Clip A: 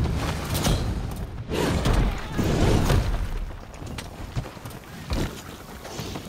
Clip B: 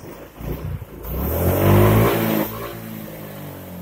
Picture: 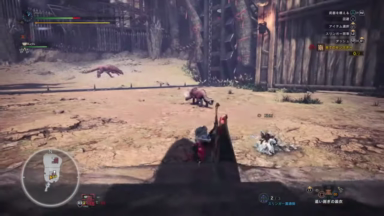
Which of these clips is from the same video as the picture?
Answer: A